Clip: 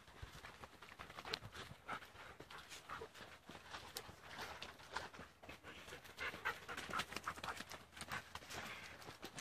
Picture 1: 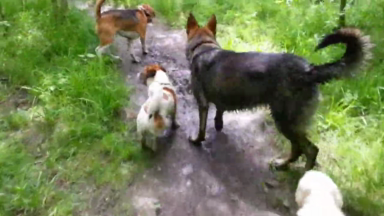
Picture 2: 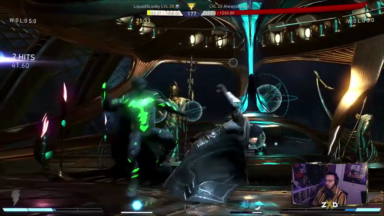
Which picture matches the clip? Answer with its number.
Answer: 1